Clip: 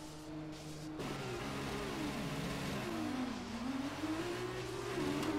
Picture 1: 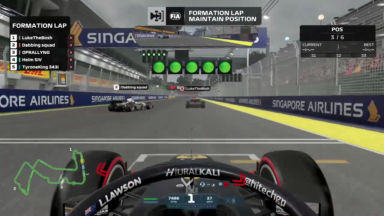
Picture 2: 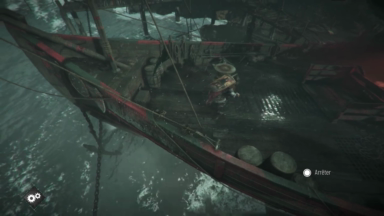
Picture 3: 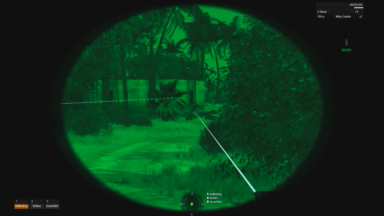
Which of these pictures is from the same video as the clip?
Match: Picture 1